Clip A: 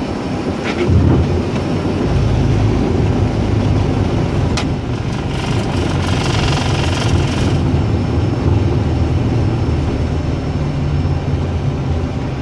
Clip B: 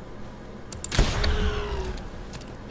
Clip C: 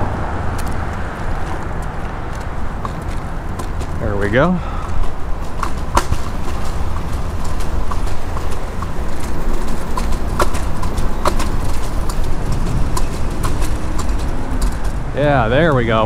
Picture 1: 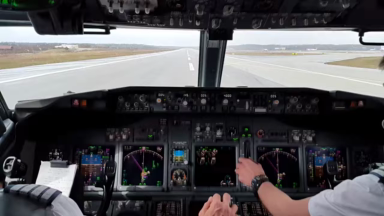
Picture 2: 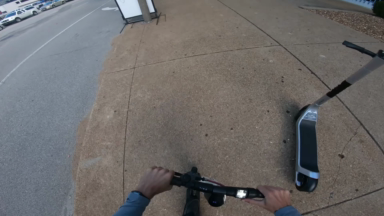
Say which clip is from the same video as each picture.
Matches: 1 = A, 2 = C